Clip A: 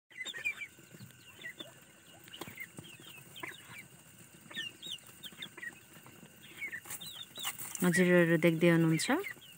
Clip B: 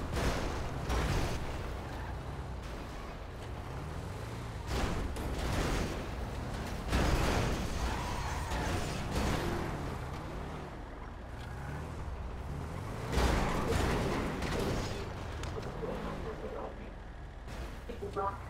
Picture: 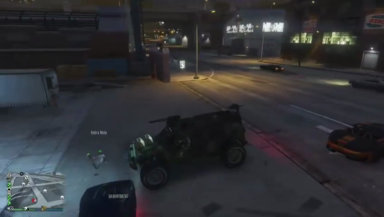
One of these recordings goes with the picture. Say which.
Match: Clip B